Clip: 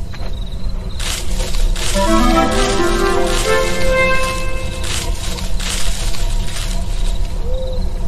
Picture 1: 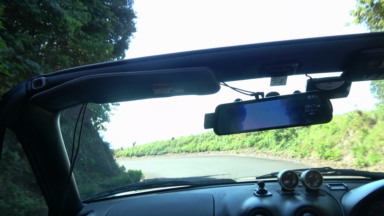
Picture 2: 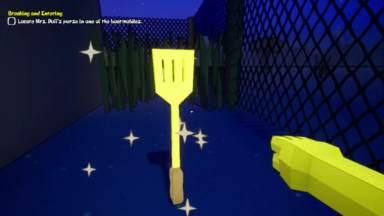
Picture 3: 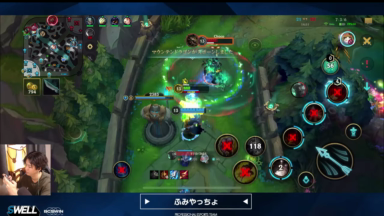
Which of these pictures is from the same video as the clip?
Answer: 2